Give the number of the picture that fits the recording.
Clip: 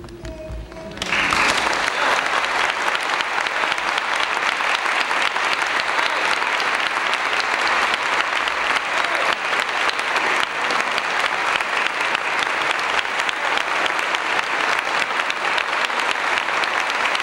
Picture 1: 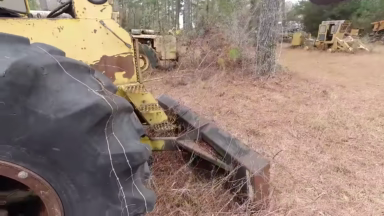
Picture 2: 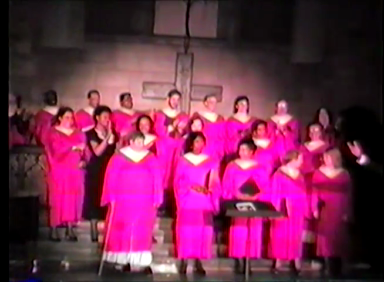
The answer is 2